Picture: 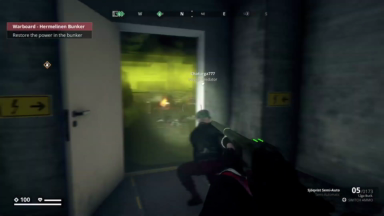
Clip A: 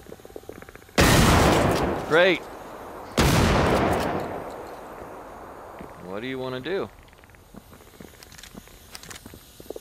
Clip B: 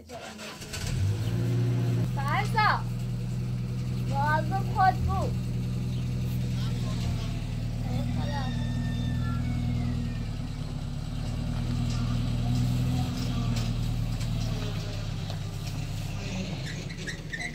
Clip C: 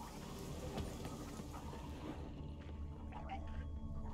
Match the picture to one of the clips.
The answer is A